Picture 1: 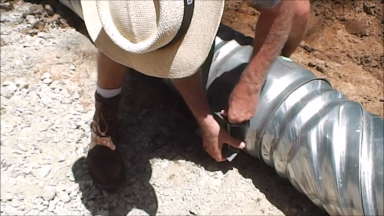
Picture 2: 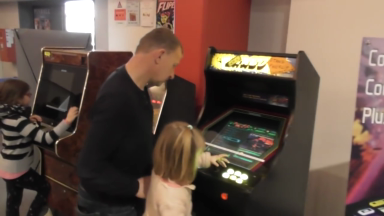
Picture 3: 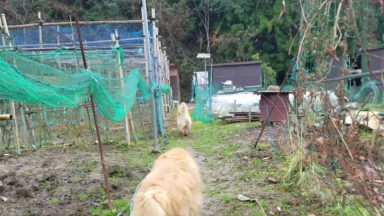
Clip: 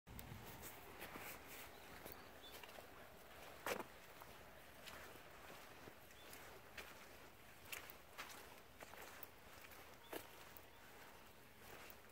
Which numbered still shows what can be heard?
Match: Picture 3